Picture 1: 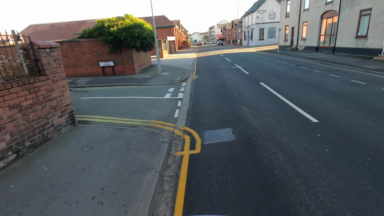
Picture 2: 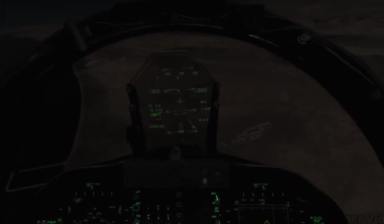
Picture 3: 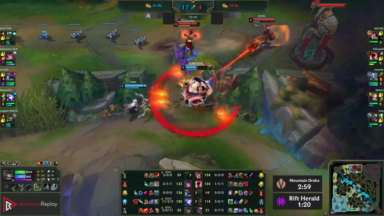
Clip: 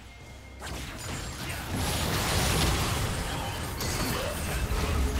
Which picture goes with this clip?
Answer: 3